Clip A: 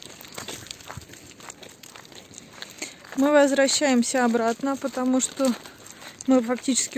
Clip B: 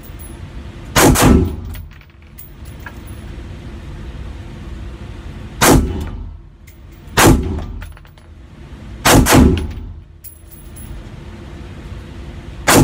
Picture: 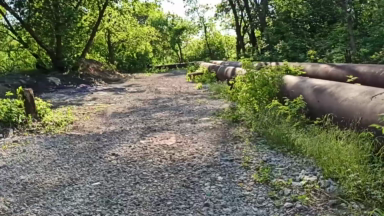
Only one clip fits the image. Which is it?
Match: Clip A